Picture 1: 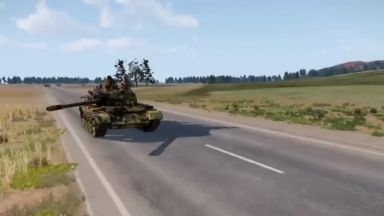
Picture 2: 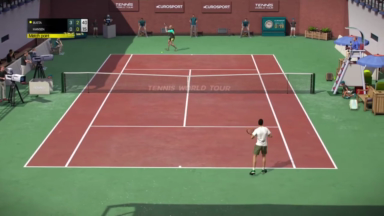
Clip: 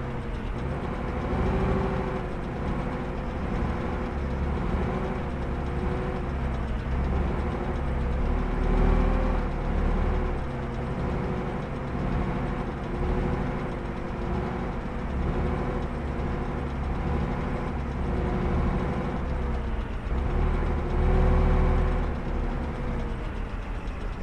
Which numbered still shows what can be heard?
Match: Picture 1